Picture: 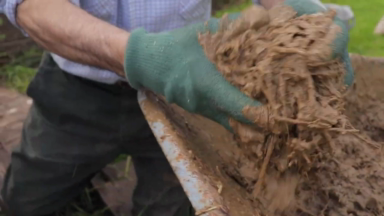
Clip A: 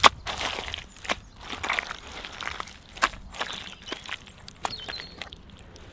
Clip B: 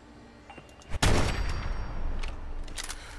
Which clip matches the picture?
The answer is A